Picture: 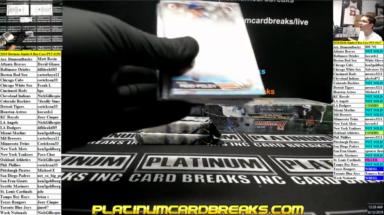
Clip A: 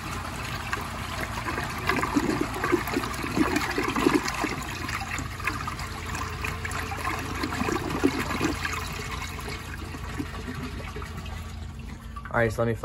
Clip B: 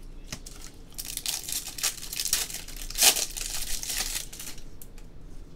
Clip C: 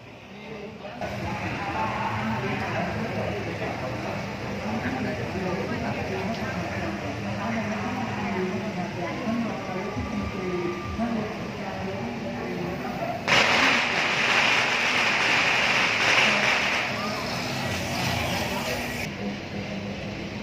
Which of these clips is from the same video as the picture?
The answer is B